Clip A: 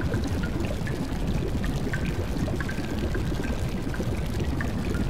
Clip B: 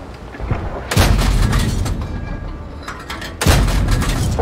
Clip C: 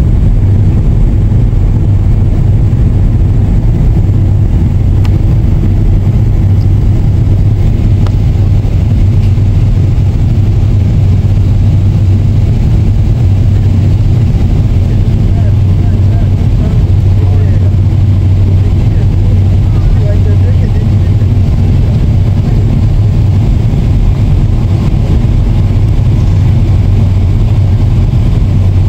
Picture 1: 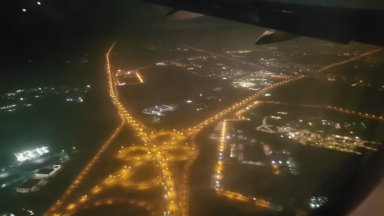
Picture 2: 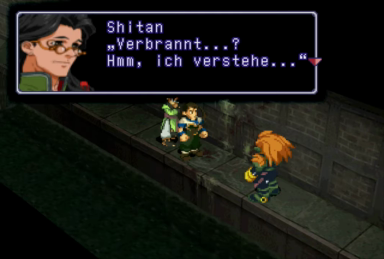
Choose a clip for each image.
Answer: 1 C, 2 A